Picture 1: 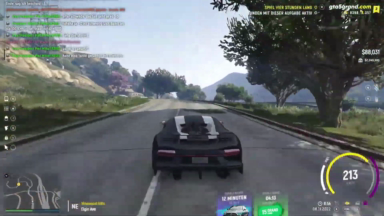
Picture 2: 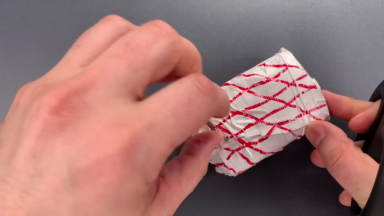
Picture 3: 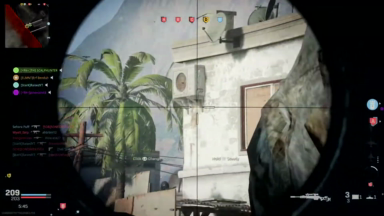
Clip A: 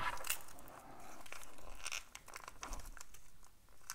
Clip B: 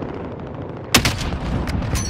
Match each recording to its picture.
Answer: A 2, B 3